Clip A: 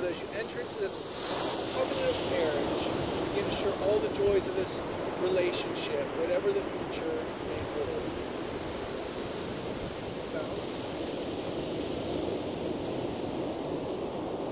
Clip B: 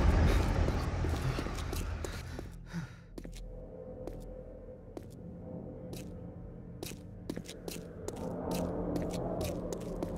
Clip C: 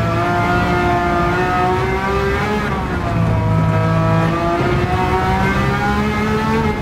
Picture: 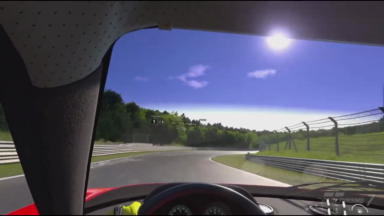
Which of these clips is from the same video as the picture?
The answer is C